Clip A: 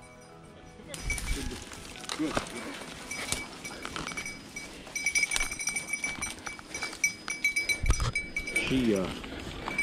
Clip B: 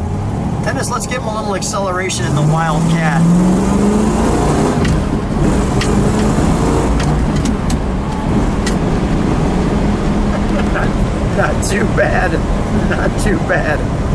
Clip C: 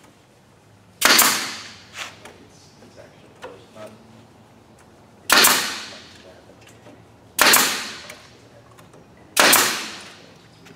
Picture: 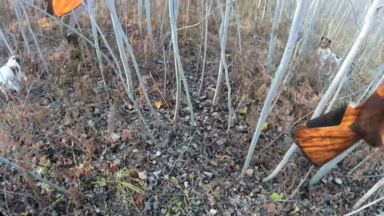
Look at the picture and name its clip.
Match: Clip A